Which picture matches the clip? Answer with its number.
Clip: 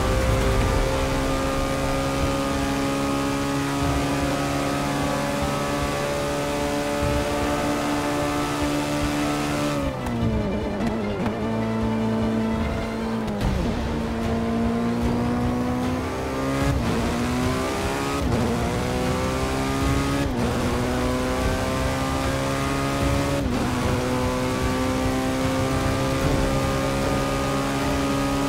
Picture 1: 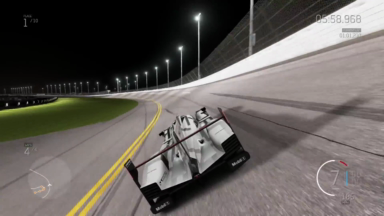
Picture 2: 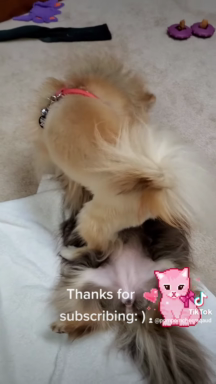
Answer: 1